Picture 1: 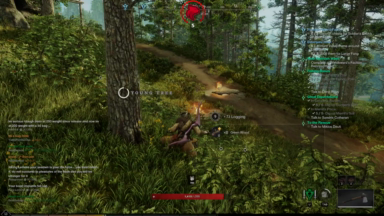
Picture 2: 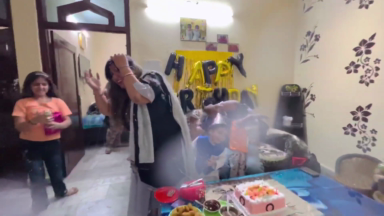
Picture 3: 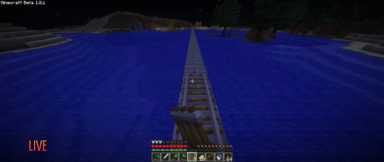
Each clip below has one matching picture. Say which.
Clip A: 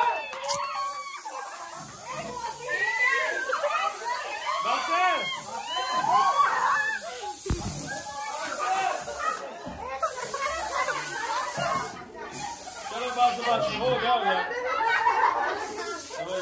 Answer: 2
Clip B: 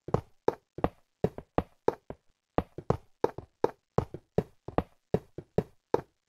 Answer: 3